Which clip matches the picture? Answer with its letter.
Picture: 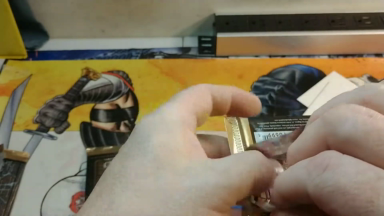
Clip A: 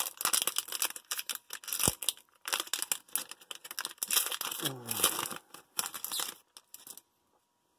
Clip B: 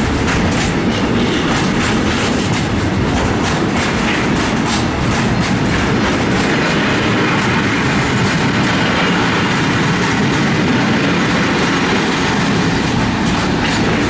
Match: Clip A